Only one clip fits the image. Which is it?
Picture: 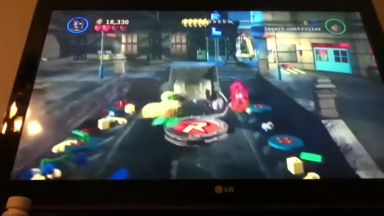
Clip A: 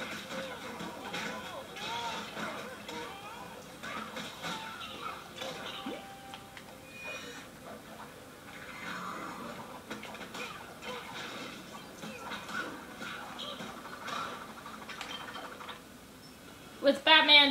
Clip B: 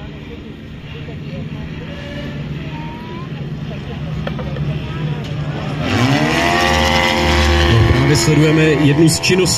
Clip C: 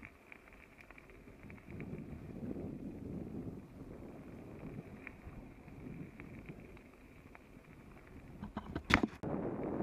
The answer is A